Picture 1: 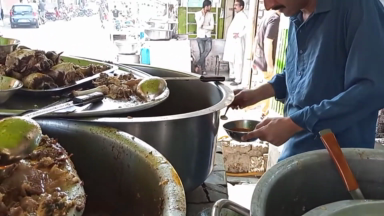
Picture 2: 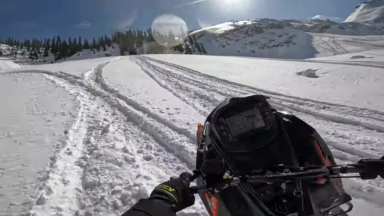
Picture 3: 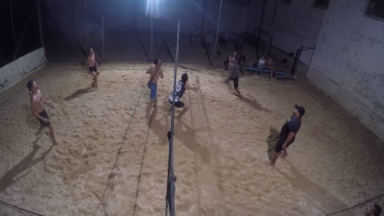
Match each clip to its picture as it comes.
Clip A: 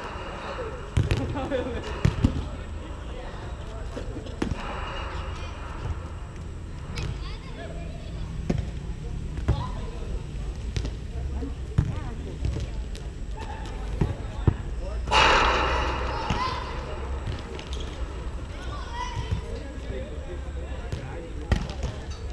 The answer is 3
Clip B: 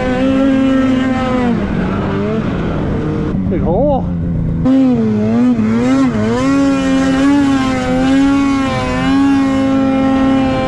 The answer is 2